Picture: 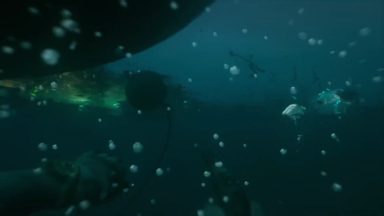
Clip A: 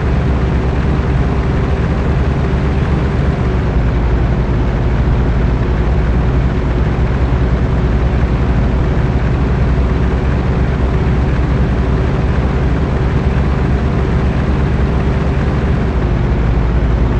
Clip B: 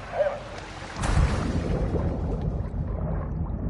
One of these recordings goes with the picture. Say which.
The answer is B